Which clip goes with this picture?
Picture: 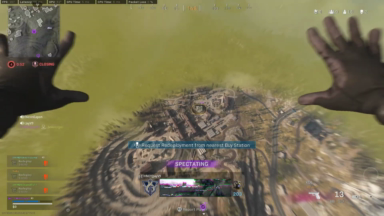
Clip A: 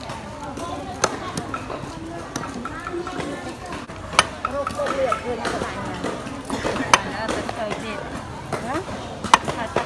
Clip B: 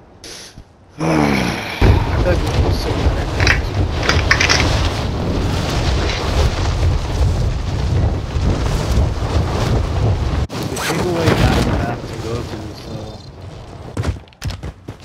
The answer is B